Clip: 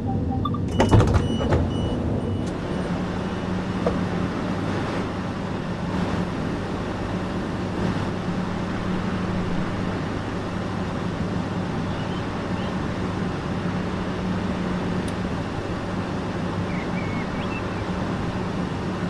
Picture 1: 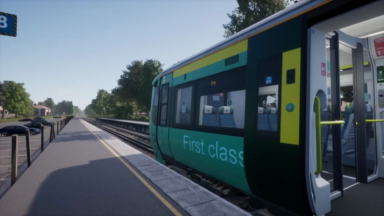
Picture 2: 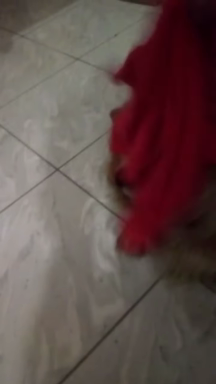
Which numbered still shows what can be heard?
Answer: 1